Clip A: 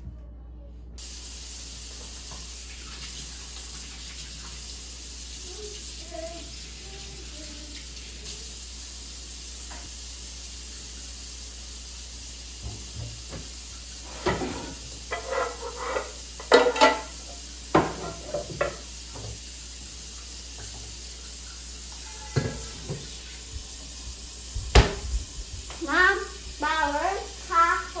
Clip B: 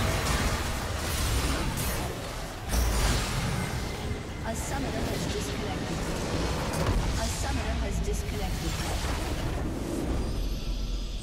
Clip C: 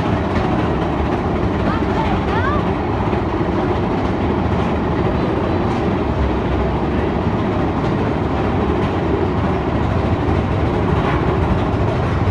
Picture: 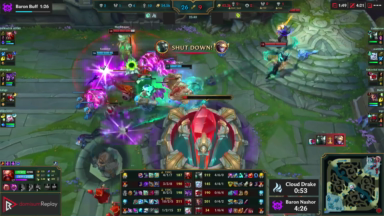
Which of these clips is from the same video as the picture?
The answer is B